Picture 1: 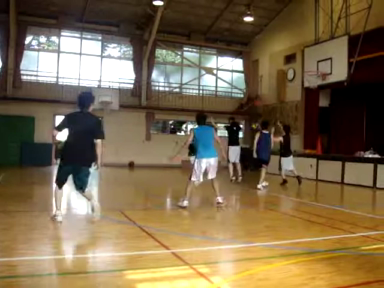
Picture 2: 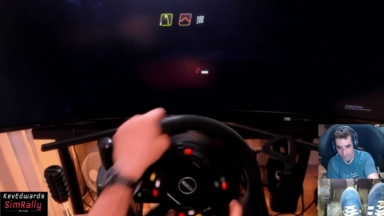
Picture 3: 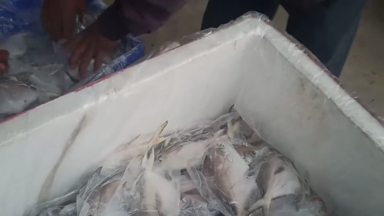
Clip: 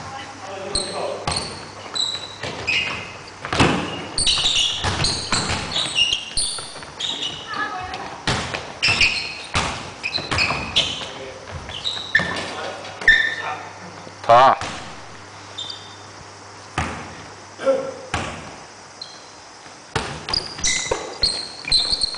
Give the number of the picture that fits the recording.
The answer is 1